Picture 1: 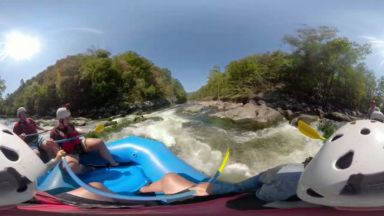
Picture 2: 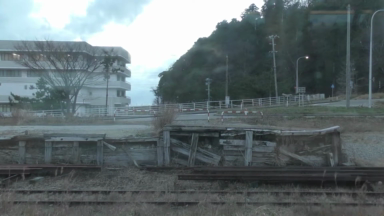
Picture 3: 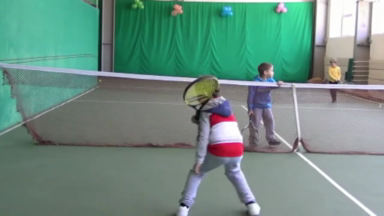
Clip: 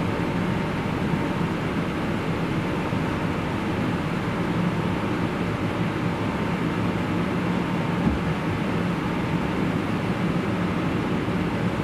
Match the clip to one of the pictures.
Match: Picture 2